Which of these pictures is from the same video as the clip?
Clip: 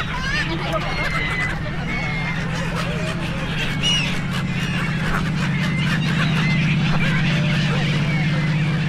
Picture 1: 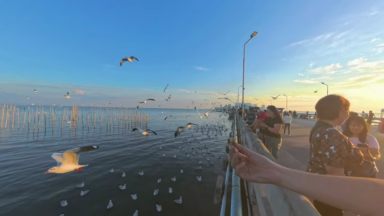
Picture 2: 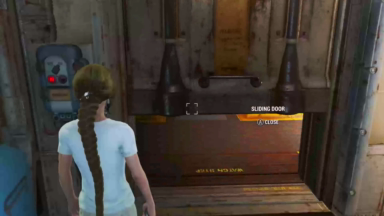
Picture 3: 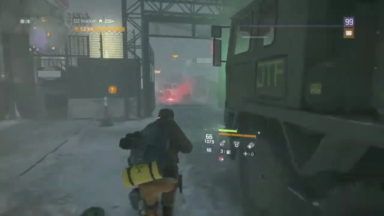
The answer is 1